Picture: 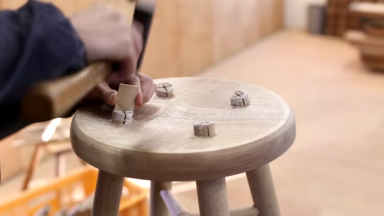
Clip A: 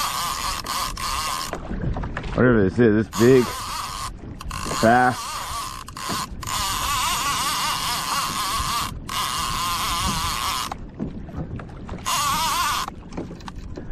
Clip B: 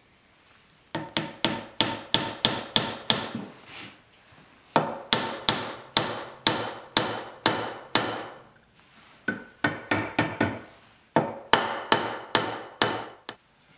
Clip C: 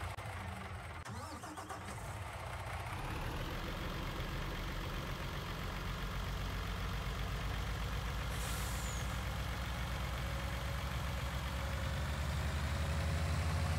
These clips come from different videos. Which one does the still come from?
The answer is B